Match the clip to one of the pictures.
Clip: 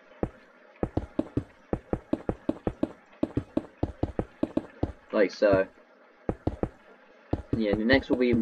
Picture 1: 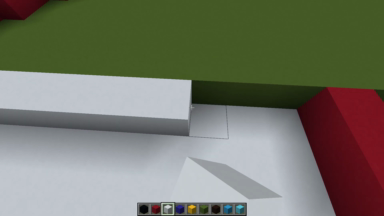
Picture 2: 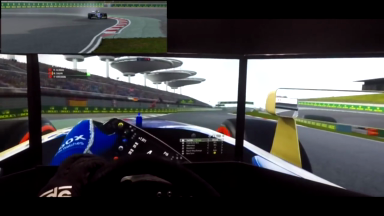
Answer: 1